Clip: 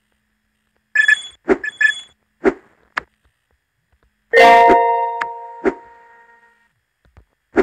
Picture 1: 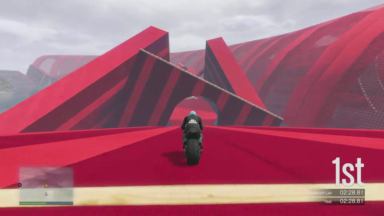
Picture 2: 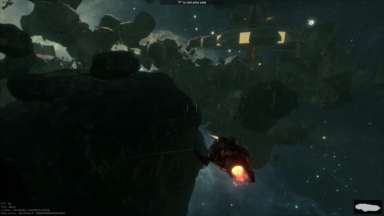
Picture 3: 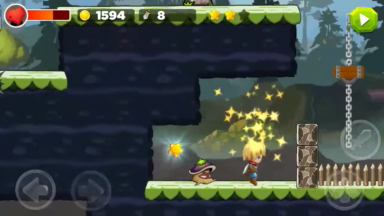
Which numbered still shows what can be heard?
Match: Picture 3